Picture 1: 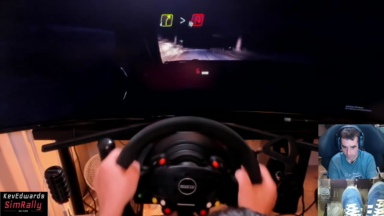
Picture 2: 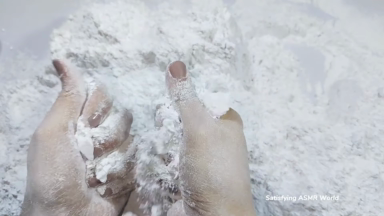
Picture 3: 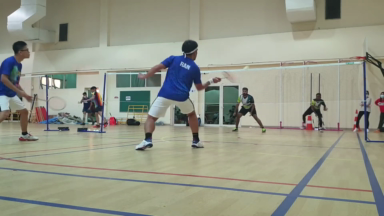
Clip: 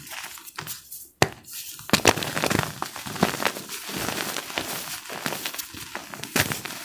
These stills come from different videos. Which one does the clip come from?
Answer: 2